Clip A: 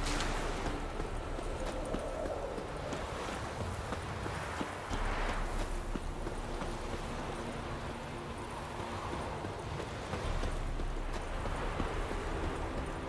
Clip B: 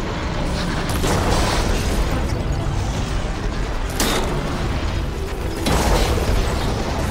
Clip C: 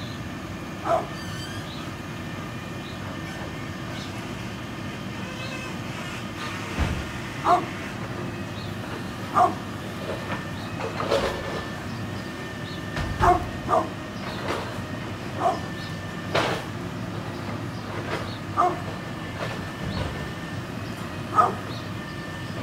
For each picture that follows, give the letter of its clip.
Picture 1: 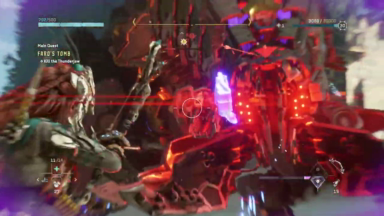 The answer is B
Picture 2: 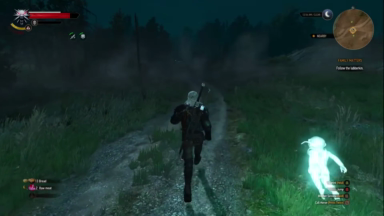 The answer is A